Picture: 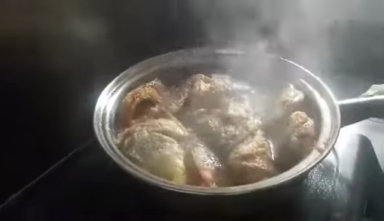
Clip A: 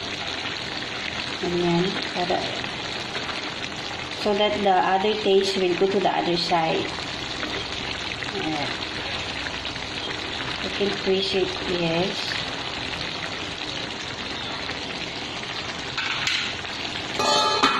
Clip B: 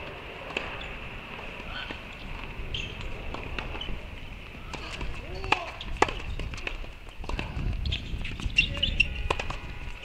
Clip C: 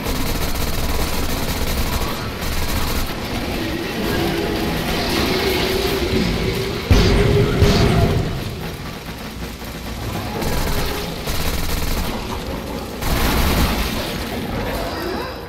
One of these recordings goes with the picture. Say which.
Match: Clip A